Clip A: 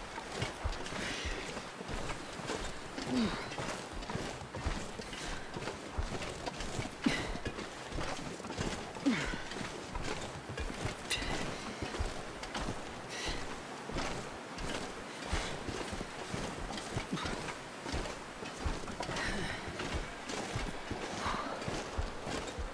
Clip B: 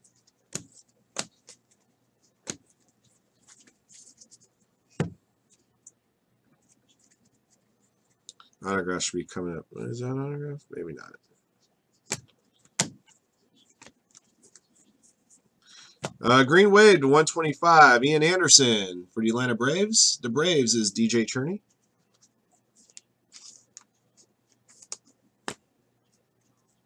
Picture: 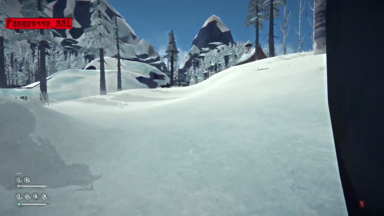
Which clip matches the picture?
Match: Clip A